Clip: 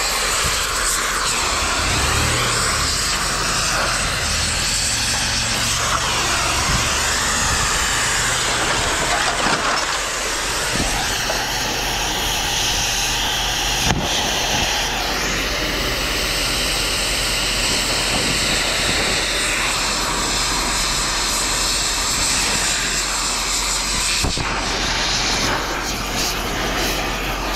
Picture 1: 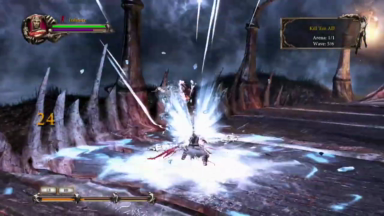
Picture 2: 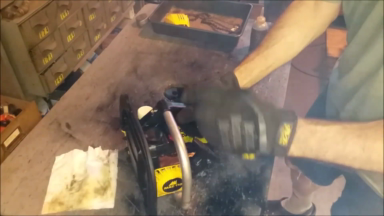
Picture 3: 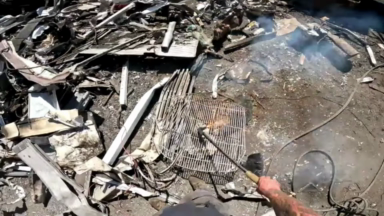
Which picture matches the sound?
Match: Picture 3